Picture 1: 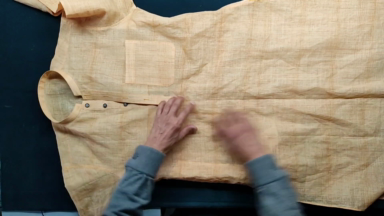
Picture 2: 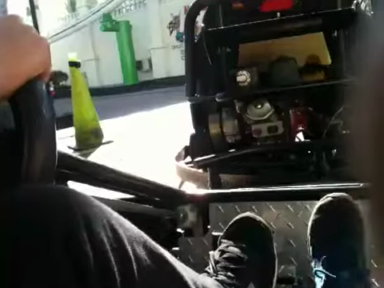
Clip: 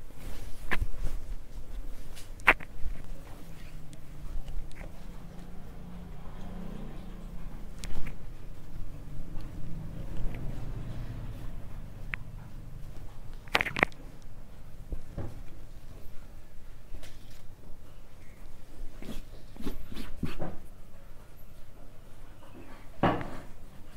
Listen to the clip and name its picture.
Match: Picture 1